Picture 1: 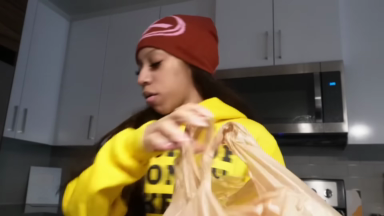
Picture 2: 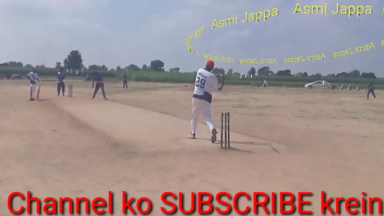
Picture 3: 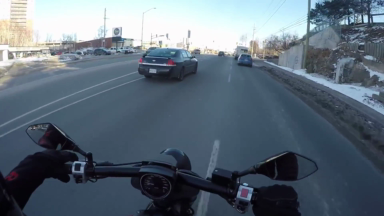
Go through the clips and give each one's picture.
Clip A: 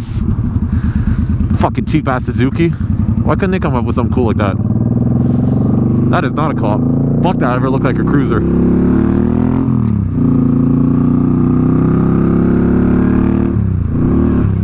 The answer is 3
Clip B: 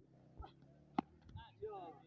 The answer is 2